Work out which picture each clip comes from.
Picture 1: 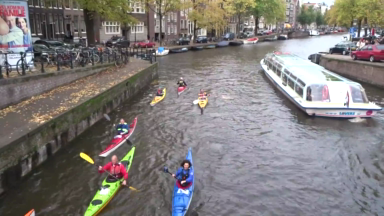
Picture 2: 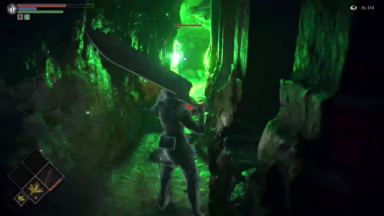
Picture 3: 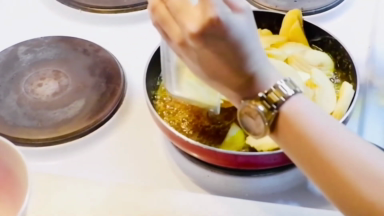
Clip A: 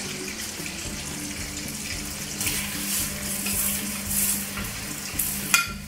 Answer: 3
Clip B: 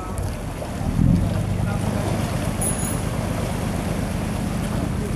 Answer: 1